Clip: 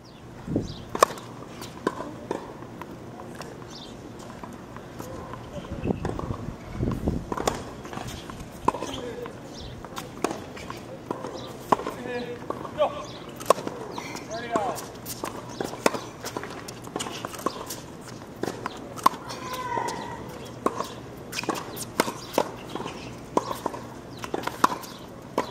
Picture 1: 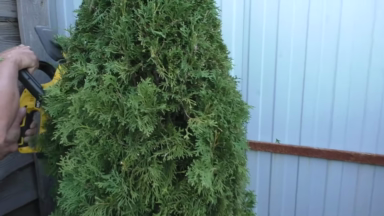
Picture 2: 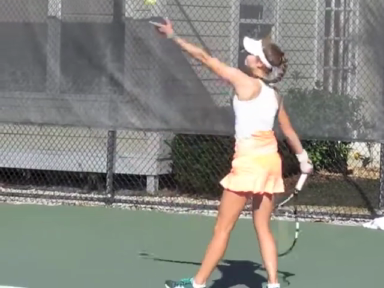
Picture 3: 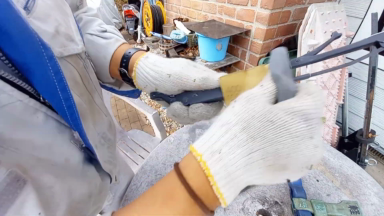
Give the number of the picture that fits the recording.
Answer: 2